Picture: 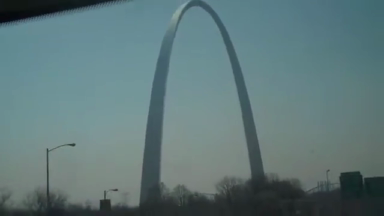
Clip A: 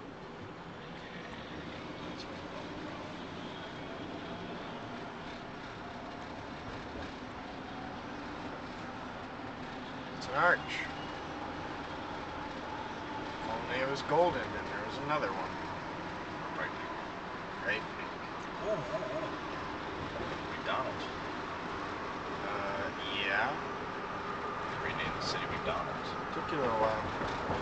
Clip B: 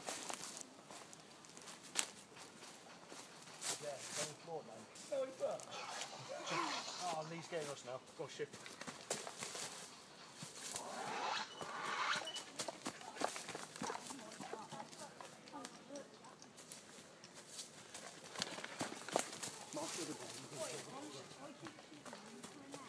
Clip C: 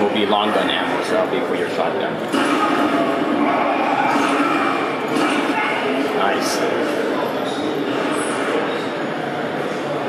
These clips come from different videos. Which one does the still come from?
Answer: A